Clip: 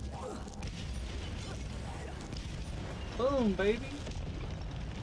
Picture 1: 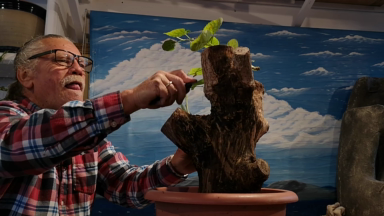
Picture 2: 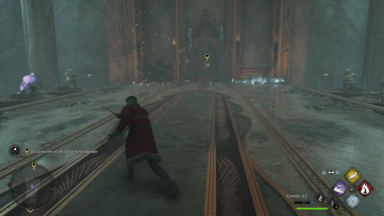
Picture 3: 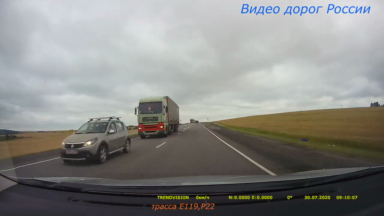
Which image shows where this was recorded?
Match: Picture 2